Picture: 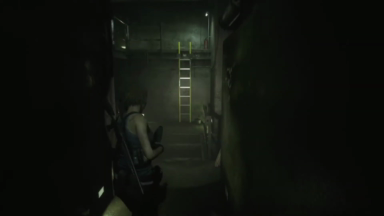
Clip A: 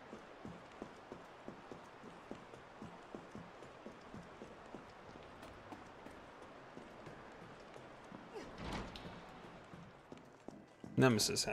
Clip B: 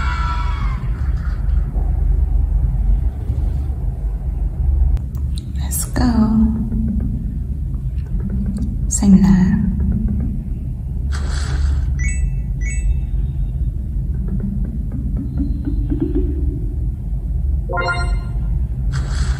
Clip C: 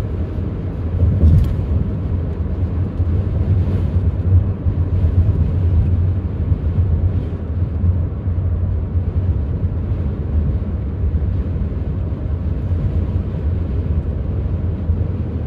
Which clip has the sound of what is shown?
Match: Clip A